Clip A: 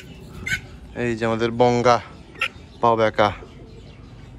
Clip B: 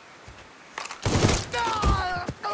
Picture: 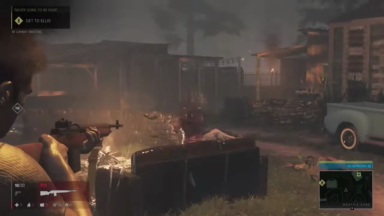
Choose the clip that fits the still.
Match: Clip B